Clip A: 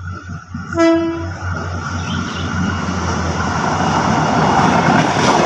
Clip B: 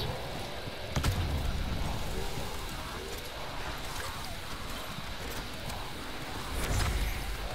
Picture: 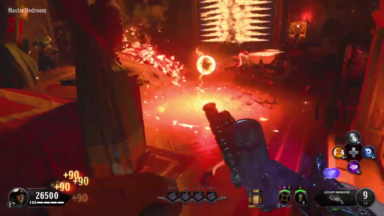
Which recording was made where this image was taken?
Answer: B